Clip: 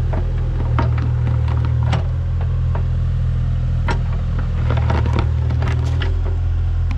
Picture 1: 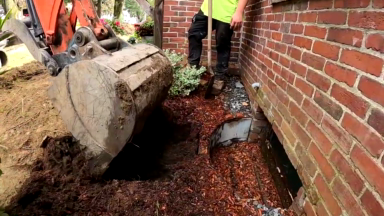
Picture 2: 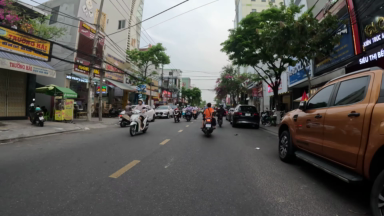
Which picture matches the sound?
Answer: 1